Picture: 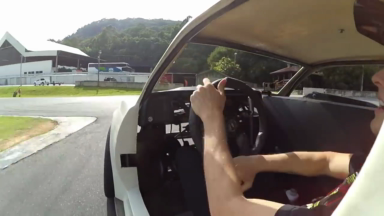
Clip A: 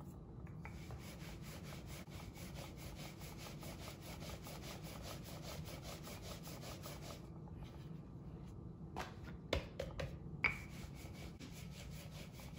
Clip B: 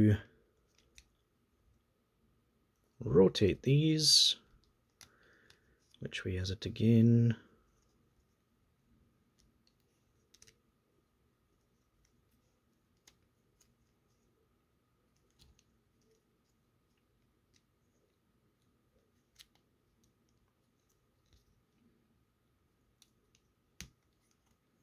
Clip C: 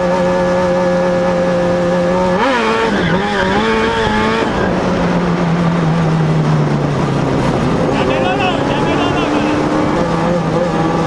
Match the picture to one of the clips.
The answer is C